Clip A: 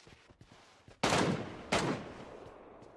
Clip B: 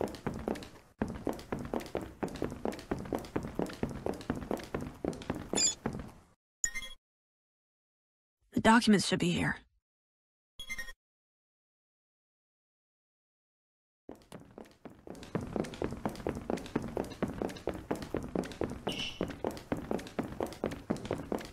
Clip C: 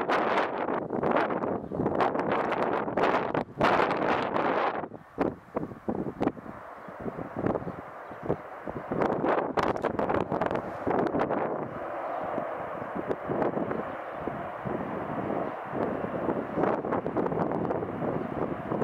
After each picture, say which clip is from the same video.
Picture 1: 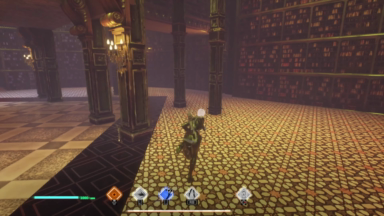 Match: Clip B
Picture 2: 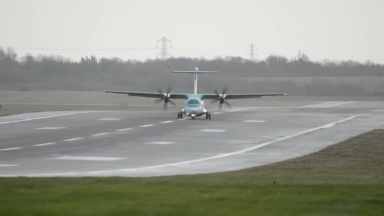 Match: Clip C